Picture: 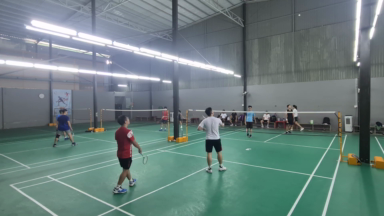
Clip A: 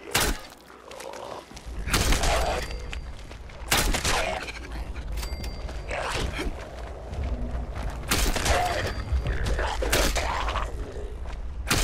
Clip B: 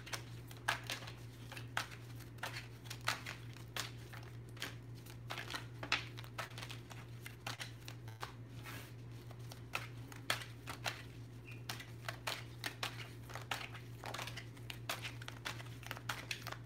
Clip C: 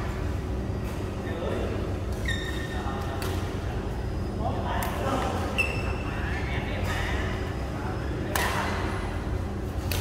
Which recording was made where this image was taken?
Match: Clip C